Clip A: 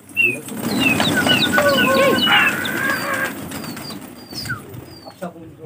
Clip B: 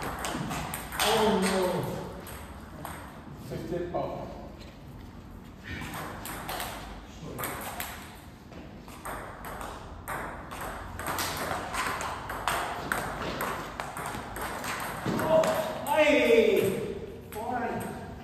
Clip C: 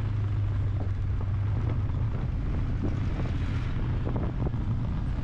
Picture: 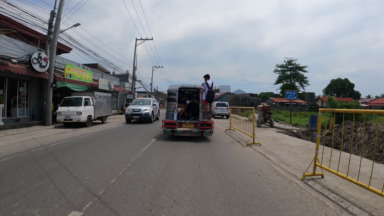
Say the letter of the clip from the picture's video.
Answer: C